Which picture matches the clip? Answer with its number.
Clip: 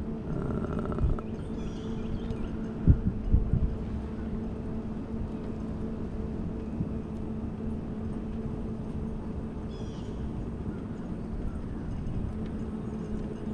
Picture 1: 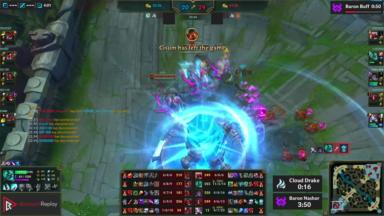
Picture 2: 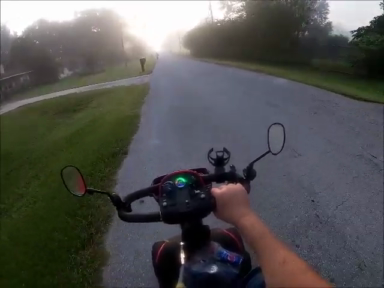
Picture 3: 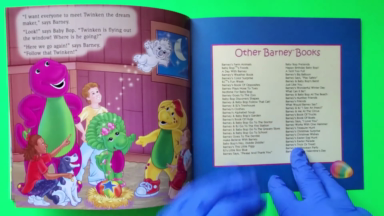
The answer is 2